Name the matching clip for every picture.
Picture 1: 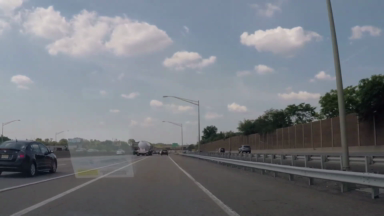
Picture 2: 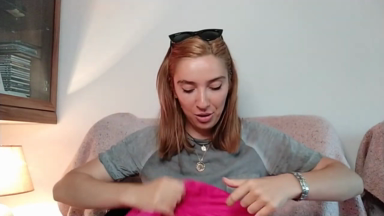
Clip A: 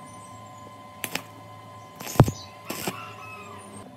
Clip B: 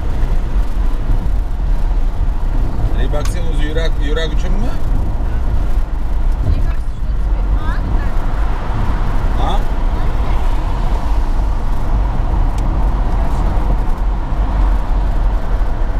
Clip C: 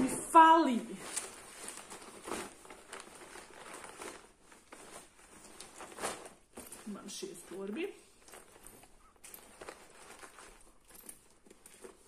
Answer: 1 B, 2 C